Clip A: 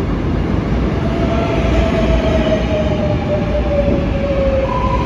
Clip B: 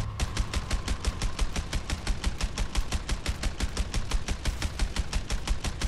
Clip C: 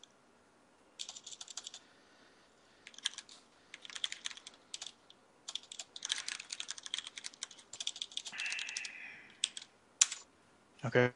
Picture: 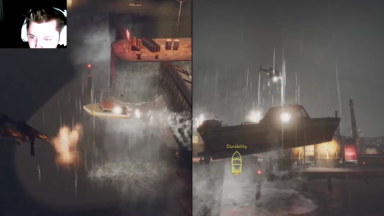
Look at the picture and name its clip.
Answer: B